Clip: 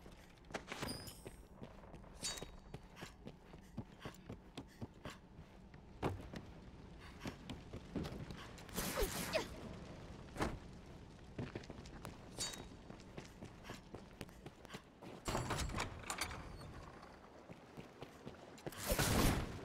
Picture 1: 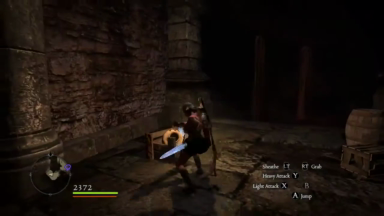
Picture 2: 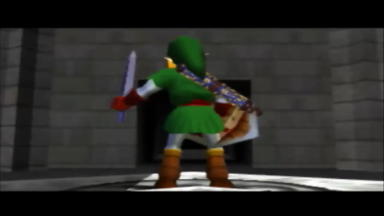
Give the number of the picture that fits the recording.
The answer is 1